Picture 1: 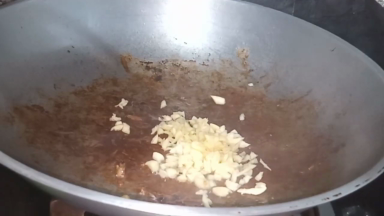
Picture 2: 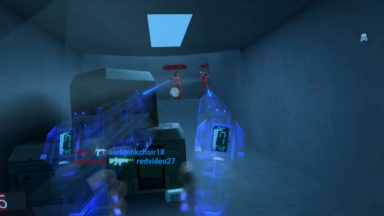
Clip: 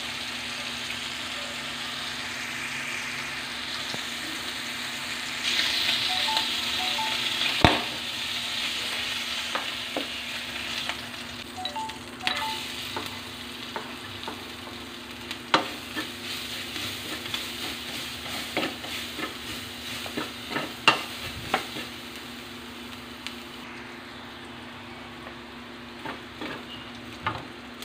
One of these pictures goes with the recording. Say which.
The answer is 1